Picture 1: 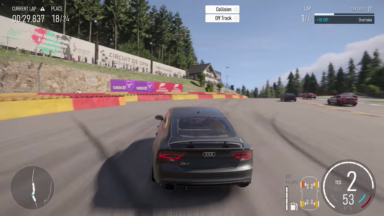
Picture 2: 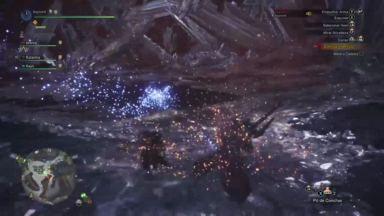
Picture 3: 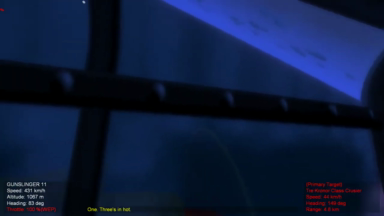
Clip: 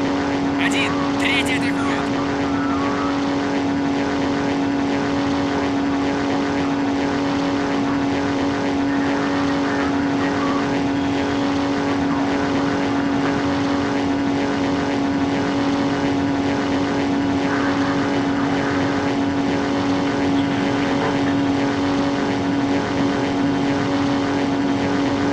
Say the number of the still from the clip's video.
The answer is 3